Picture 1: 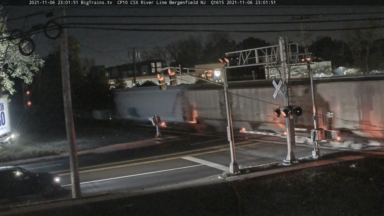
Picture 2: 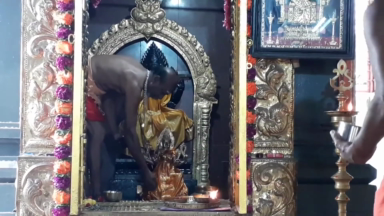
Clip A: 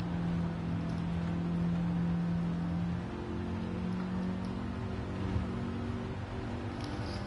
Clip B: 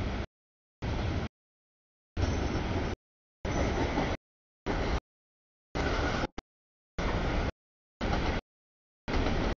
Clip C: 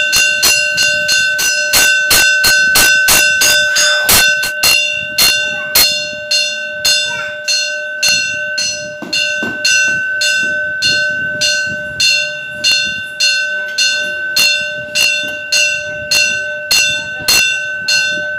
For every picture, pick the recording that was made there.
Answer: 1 B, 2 C